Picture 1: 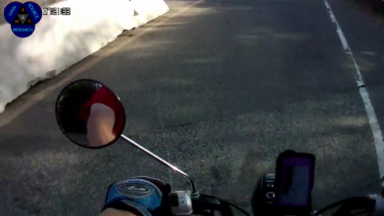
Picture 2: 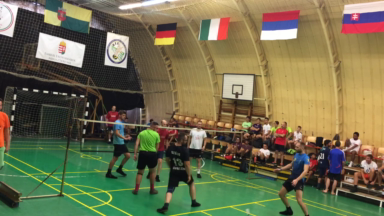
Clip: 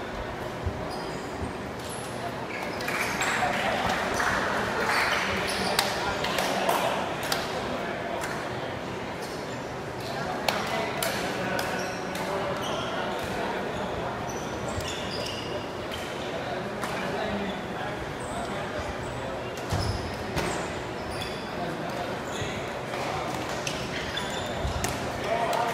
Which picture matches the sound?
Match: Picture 2